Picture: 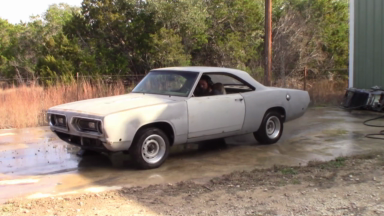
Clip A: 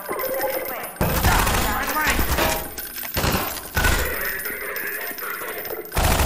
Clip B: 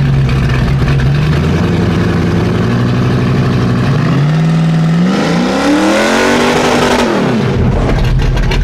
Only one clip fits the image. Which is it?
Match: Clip B